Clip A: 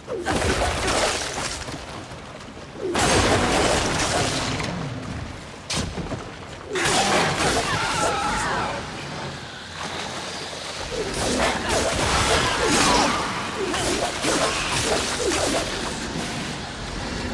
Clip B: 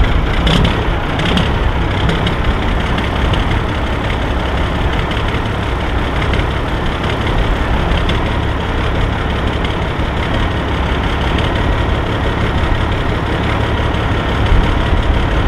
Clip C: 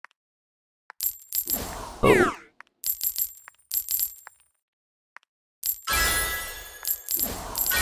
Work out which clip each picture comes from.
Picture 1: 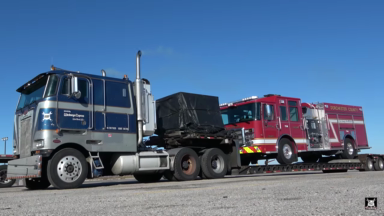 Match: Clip B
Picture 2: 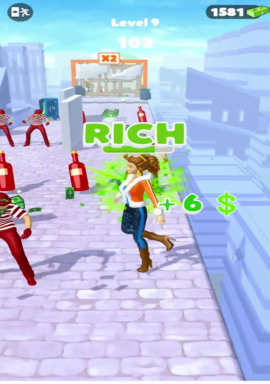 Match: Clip C